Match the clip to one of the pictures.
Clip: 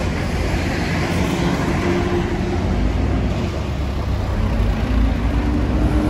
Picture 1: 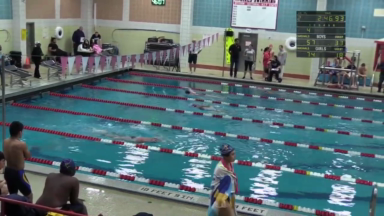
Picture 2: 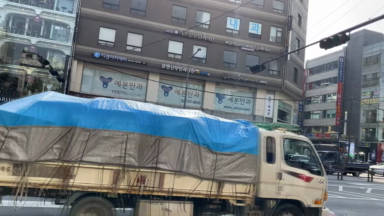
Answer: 2